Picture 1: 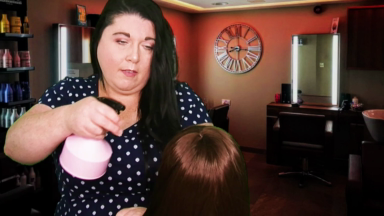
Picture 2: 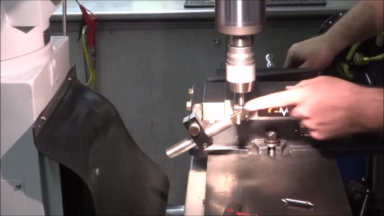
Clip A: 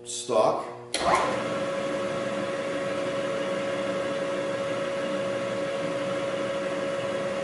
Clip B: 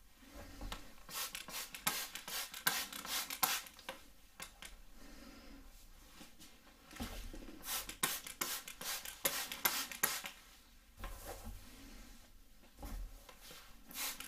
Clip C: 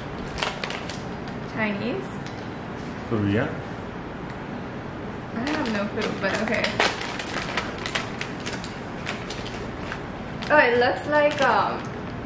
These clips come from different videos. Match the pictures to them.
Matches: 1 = B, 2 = A